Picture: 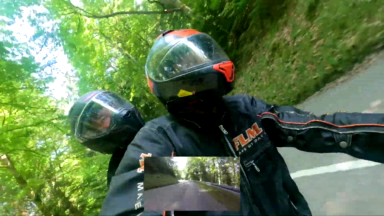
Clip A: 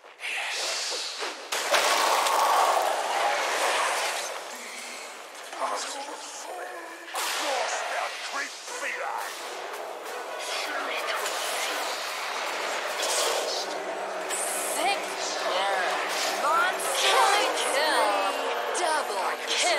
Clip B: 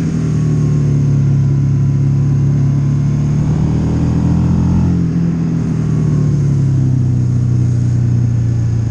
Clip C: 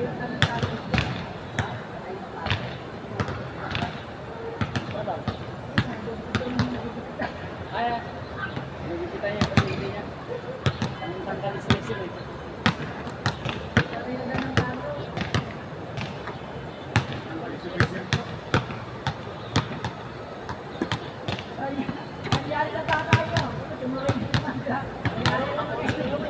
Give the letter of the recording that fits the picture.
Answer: B